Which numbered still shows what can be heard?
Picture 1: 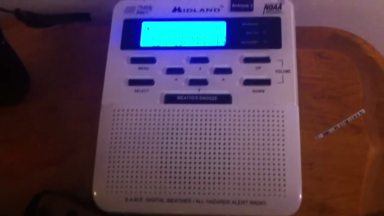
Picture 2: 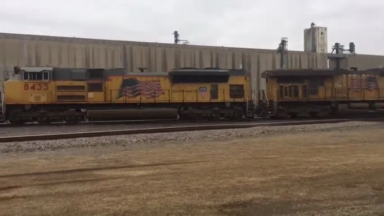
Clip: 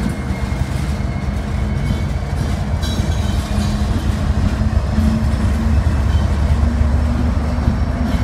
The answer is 2